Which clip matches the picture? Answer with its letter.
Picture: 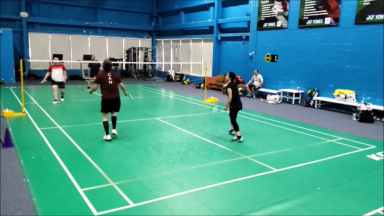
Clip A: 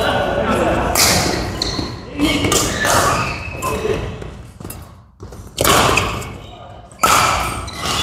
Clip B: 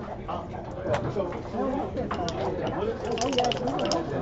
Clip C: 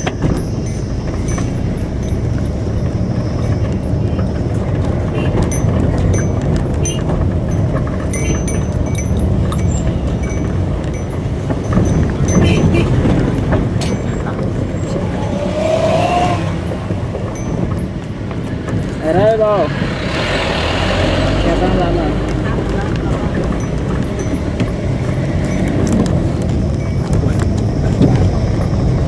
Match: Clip A